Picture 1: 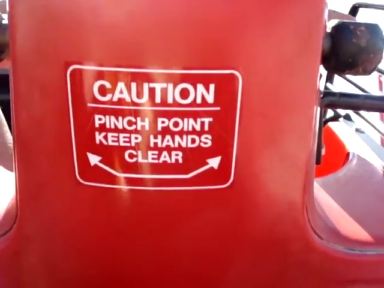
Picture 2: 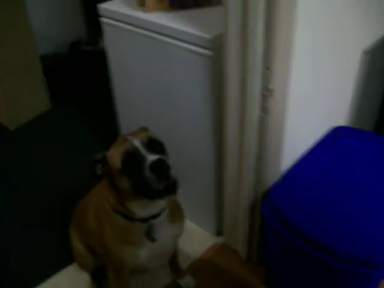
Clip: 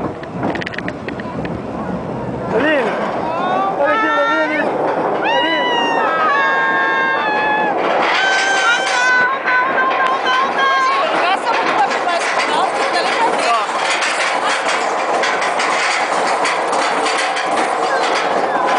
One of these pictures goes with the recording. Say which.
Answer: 1